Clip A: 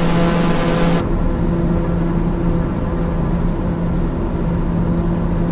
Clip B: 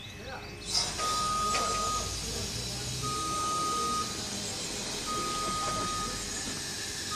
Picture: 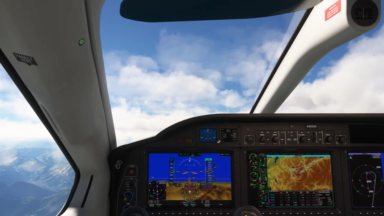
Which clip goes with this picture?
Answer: A